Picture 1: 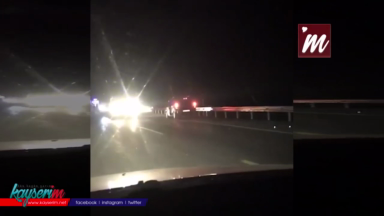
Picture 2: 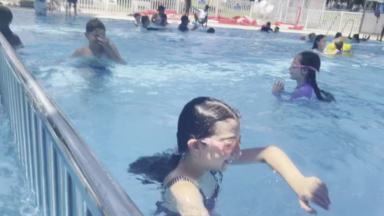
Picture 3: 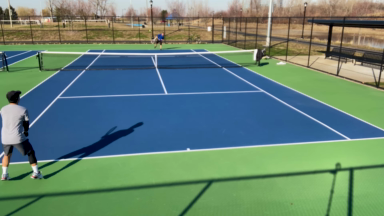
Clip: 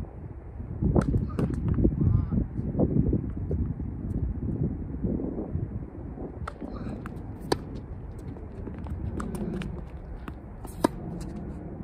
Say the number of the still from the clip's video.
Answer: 3